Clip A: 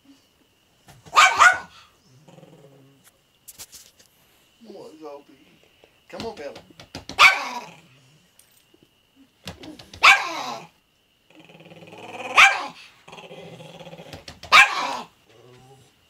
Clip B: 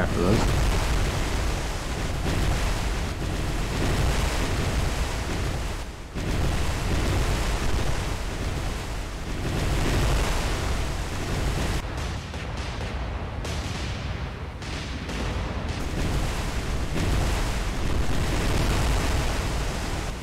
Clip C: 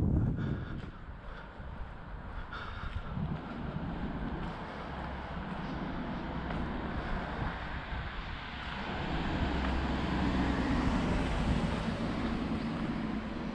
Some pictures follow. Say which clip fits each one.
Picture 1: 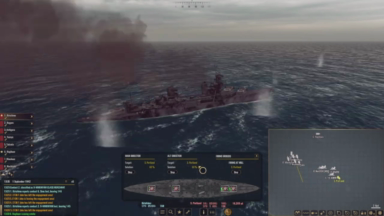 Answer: B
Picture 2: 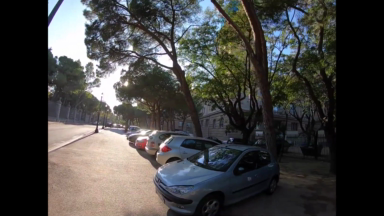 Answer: C